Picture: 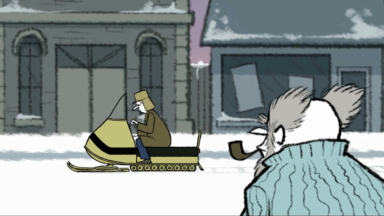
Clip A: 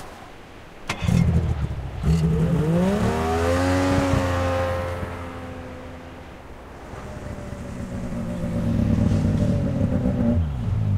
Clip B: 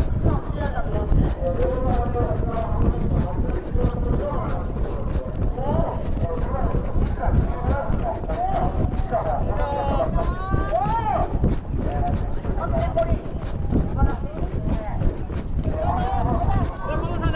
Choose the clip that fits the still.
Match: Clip A